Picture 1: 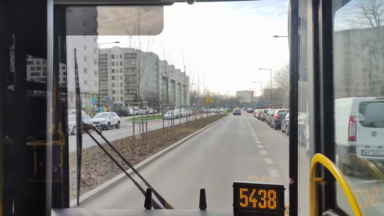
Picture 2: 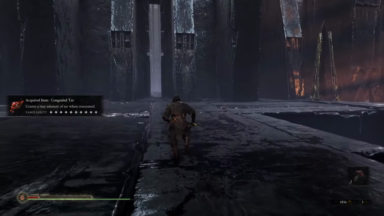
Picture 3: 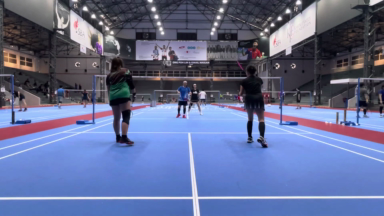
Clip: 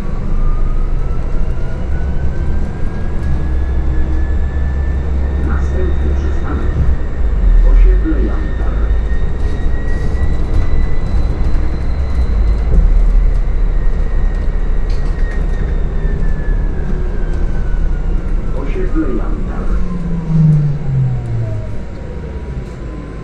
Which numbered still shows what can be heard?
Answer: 1